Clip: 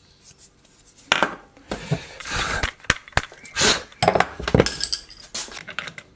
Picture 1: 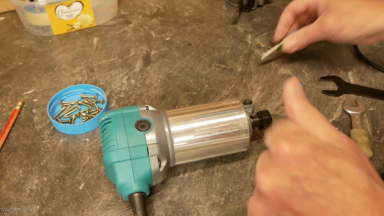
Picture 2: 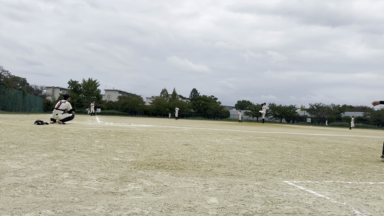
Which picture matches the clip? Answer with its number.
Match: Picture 1